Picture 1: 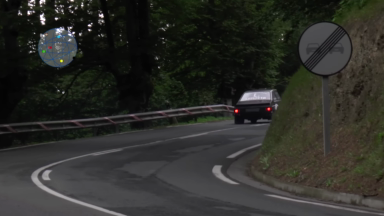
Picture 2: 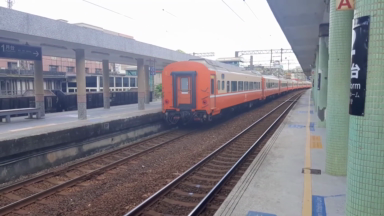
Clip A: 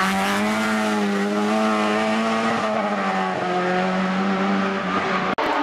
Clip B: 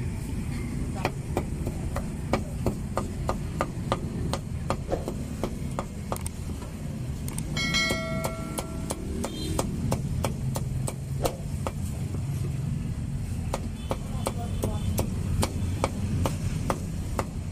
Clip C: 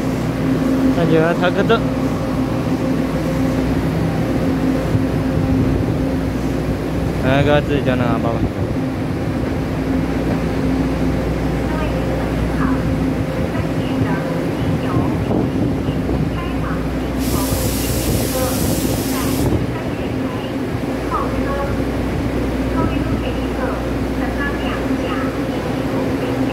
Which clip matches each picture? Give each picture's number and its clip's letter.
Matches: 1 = A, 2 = C